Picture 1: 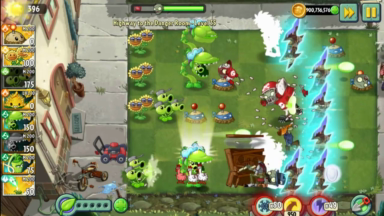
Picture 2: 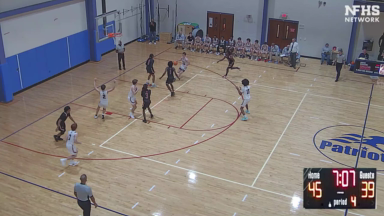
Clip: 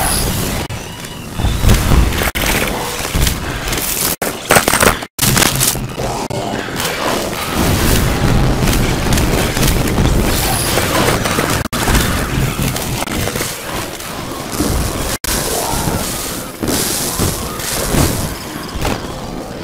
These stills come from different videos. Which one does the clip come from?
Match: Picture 1